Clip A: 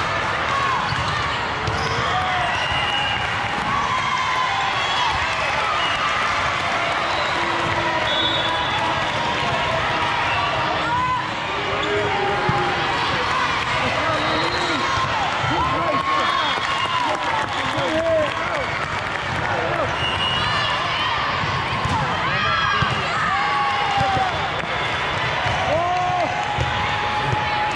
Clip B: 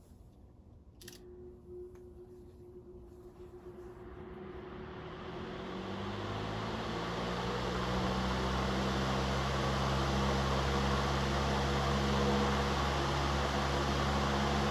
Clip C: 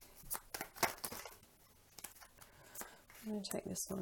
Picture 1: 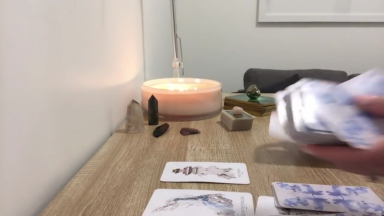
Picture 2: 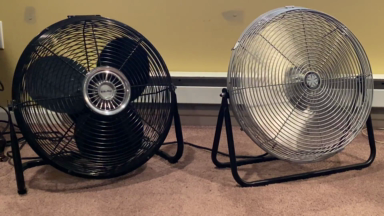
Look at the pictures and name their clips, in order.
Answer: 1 C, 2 B